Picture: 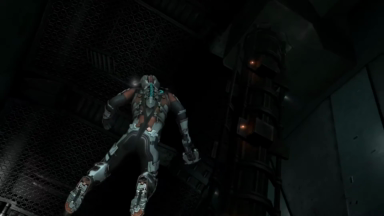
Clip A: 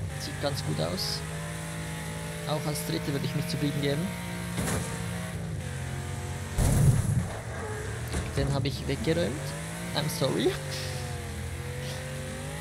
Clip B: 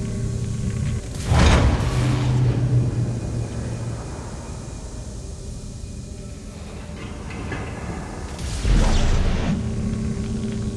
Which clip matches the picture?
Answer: B